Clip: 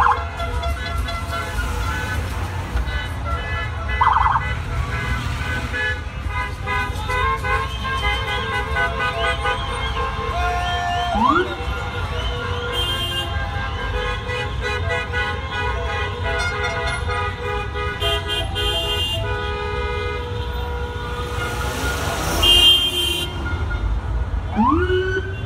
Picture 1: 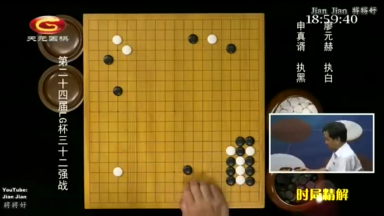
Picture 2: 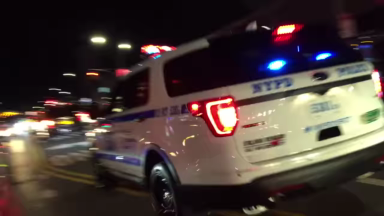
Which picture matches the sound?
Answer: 2